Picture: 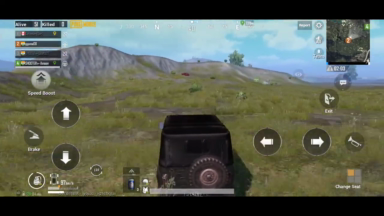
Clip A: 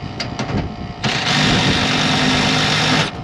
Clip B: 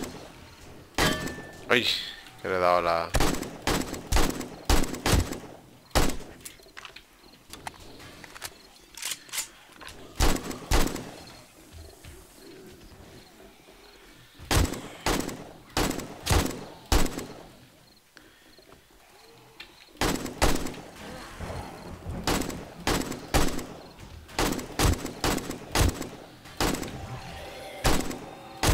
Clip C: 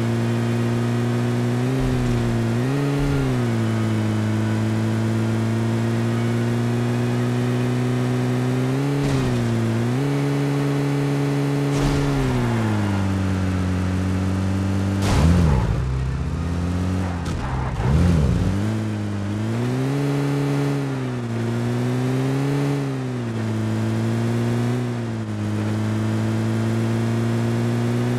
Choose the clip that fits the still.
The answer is C